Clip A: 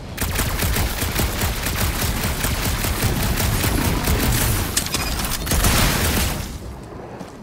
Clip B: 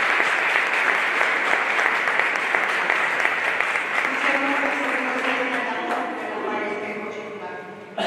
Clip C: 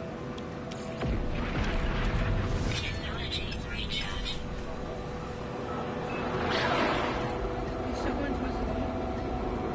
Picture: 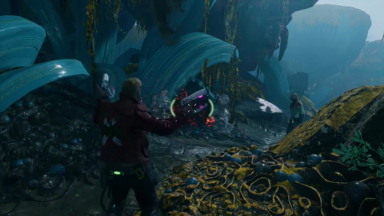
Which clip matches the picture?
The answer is A